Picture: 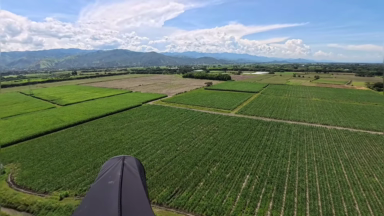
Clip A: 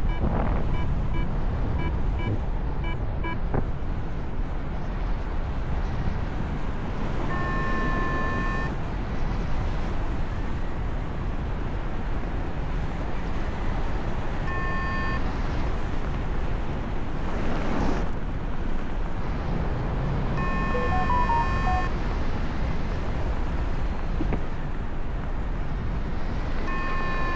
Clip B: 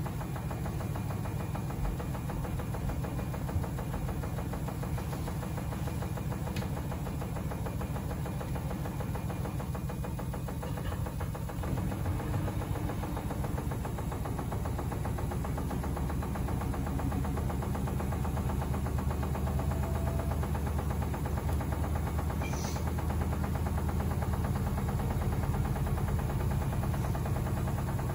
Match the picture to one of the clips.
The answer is A